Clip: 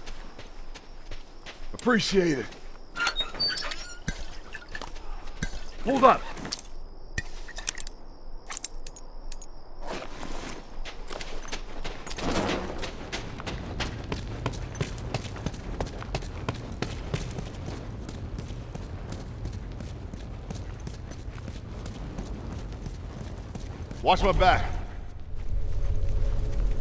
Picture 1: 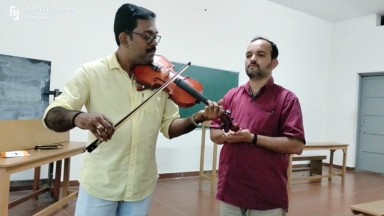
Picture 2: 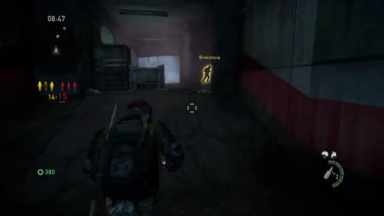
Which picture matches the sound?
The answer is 2